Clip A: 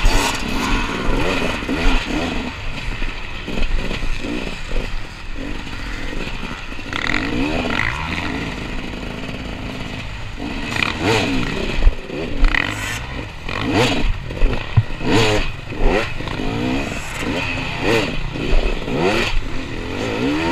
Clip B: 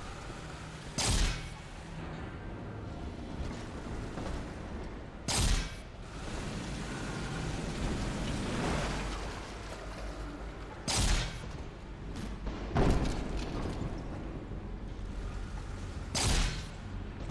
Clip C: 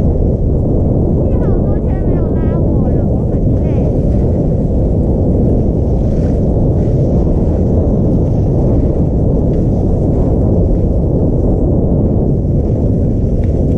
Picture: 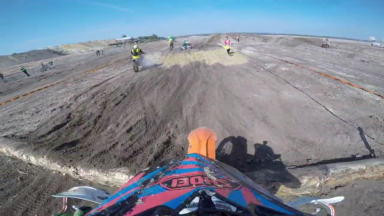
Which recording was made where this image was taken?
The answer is A